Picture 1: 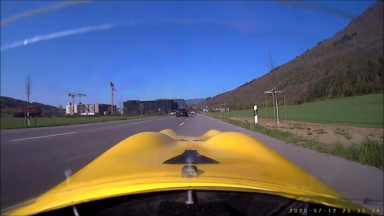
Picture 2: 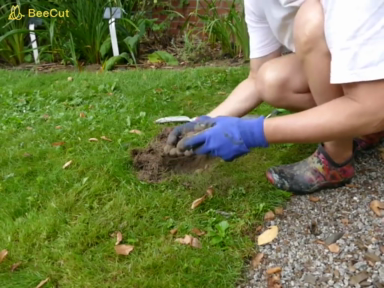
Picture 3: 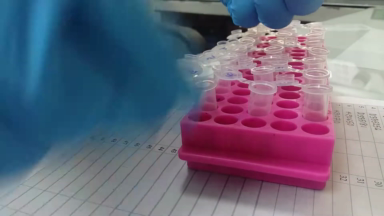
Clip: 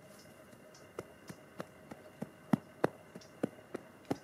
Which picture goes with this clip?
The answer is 2